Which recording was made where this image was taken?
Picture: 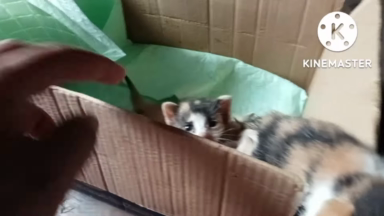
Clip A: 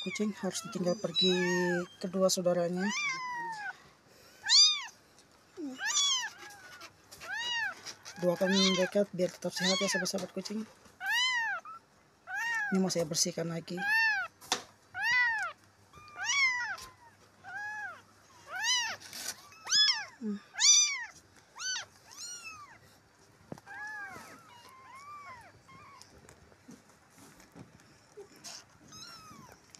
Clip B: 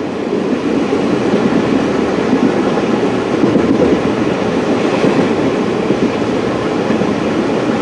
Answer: A